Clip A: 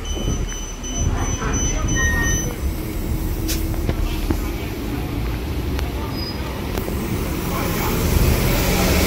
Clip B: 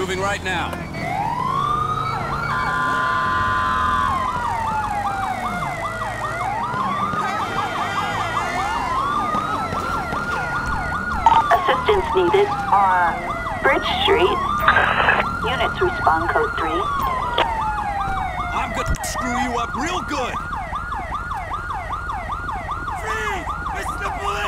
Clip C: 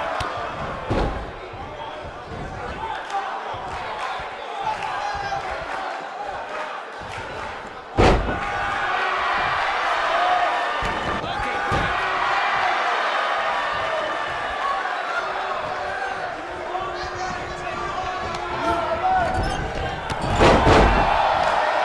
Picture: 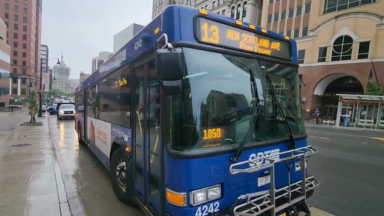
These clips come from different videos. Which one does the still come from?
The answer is A